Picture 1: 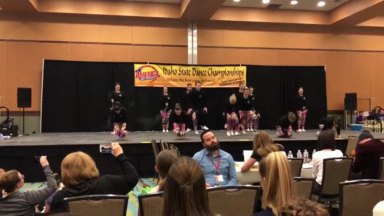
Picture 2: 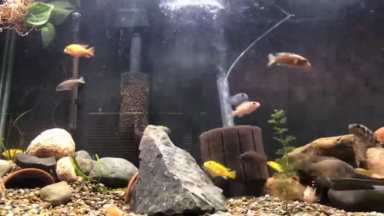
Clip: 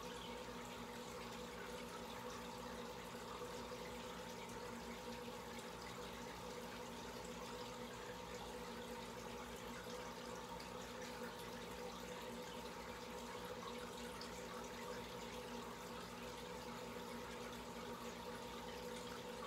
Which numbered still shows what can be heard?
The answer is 2